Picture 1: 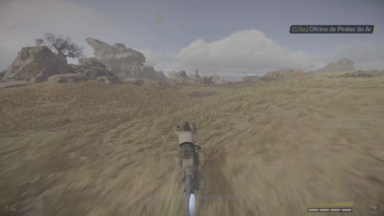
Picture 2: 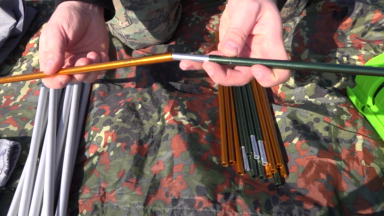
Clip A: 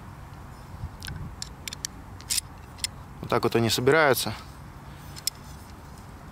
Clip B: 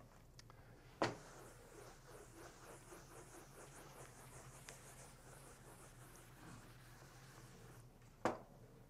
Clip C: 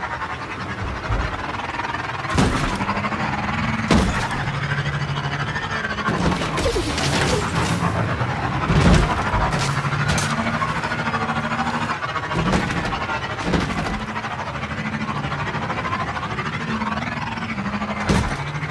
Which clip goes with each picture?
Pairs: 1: C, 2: A